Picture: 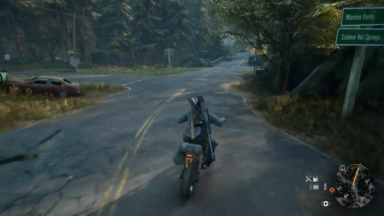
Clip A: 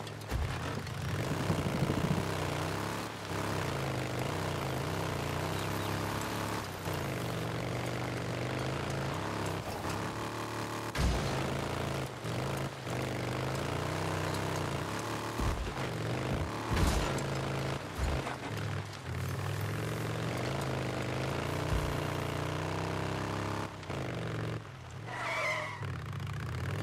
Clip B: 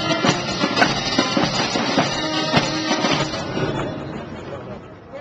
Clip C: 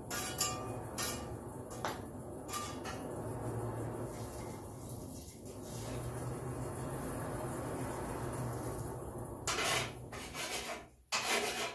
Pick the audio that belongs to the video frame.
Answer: A